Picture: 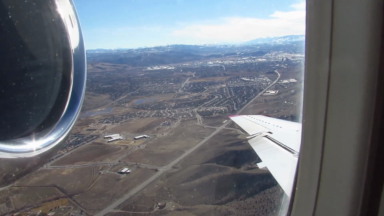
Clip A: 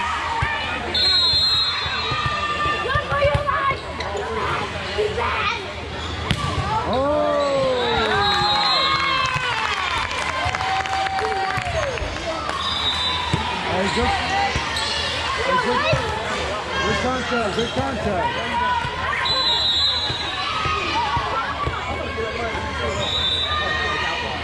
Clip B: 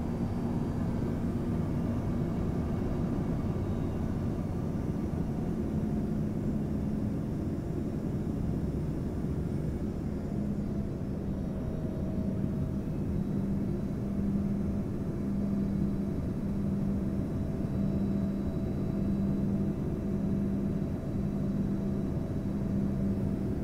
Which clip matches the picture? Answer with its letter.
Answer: B